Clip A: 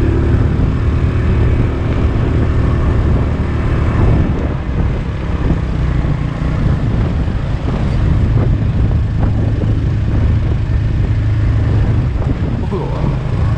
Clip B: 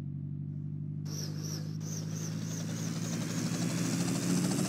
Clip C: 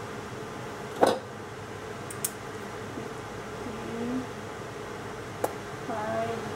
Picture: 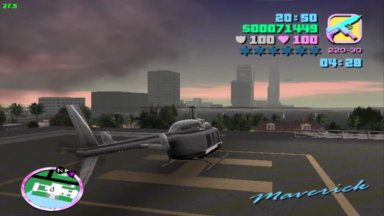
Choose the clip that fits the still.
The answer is B